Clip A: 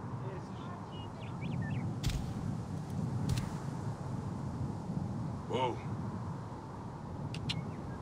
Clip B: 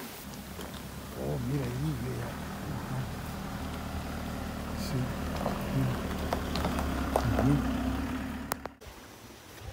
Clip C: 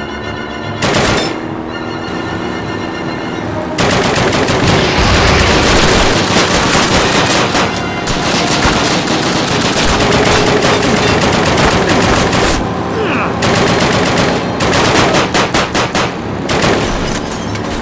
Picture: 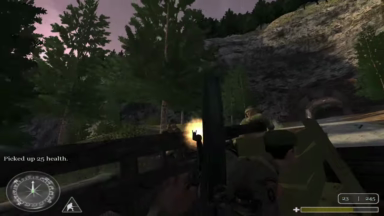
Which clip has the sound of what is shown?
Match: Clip C